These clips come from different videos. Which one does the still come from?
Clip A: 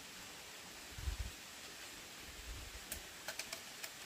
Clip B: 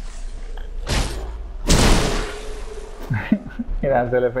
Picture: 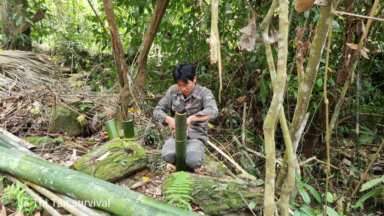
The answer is A